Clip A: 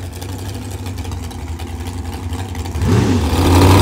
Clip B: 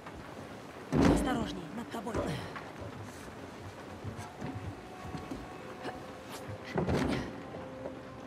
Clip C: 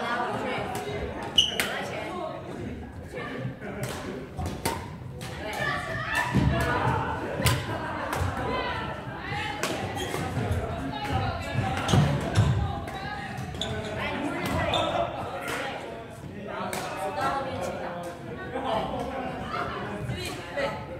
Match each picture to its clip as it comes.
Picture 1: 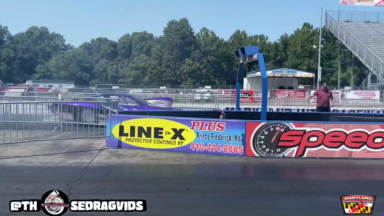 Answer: A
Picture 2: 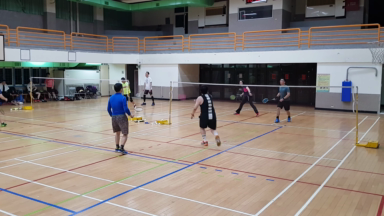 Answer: C